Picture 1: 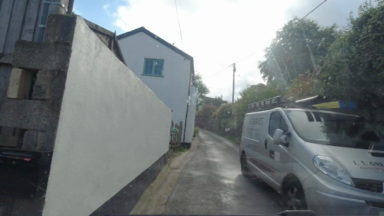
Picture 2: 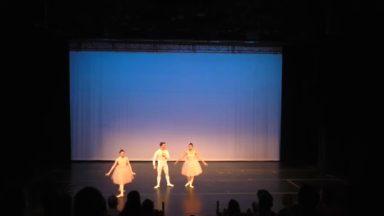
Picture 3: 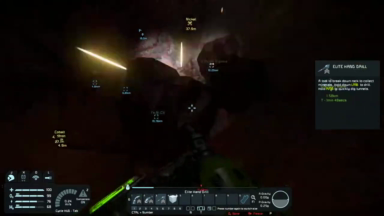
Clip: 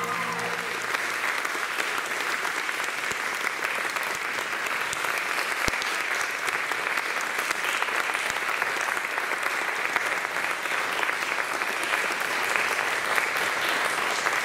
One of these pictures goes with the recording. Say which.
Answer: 2